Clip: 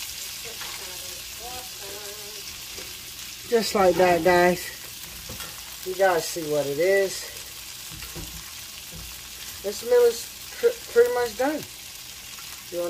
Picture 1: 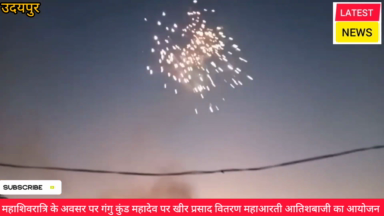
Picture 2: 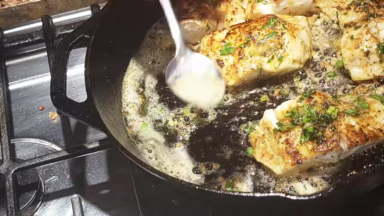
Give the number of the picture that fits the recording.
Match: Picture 2